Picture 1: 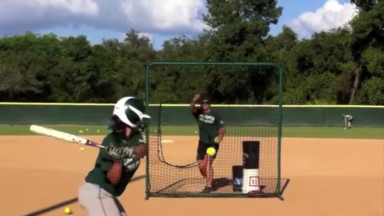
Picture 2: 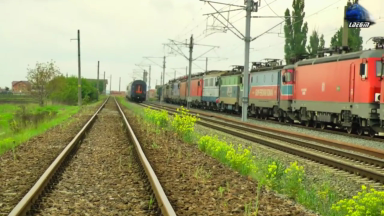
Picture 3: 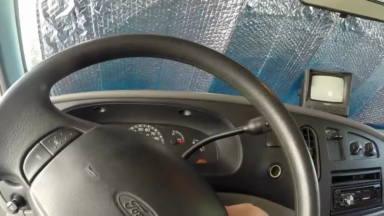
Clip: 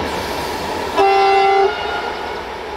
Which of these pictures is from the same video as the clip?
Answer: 2